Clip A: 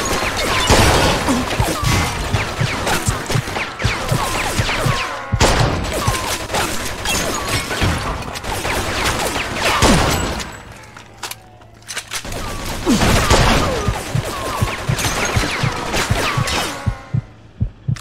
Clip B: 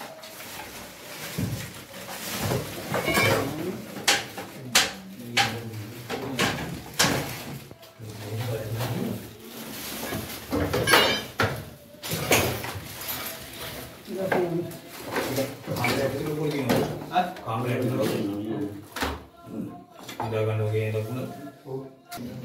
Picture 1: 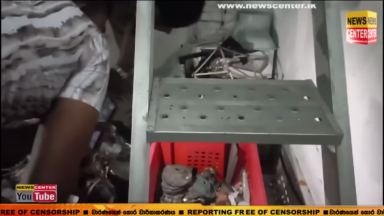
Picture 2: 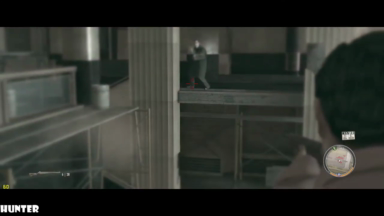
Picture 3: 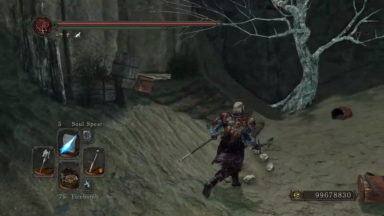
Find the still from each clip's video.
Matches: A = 2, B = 1